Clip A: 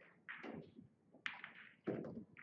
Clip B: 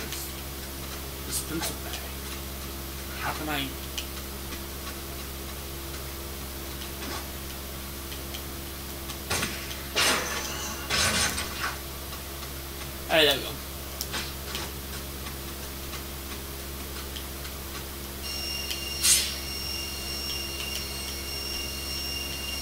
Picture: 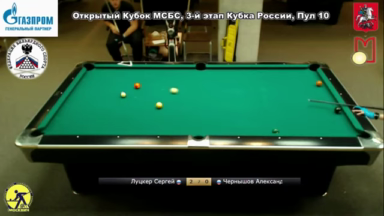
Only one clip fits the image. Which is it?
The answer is A